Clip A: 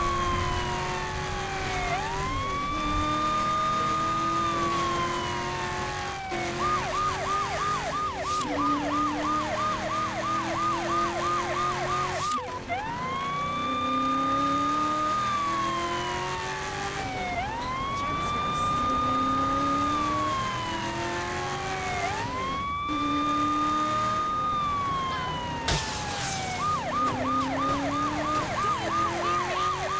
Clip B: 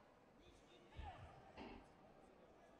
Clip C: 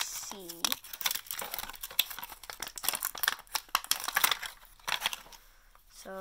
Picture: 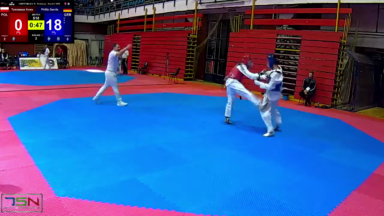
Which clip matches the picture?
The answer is B